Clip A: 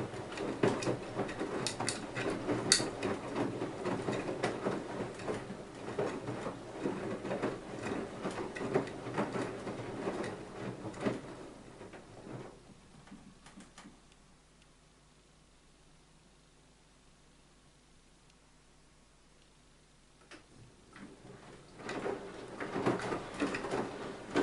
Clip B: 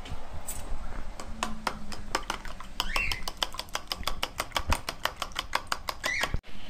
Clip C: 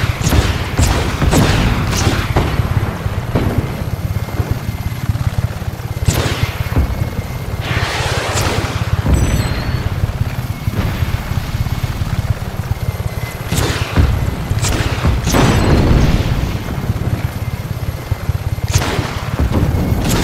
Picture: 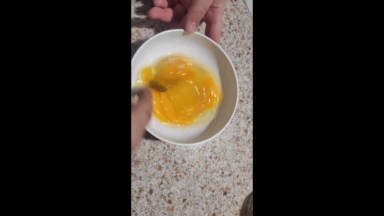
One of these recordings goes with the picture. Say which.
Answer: B